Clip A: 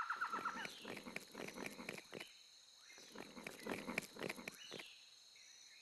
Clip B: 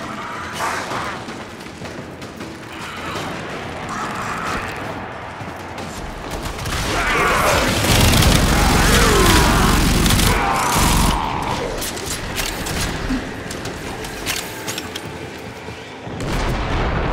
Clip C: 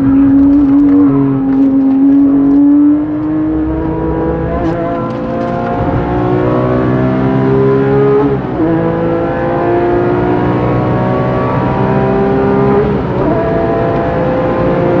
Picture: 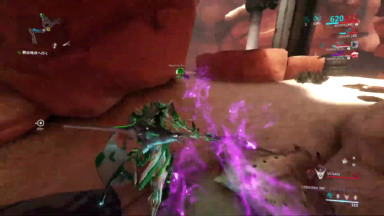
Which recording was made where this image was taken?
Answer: B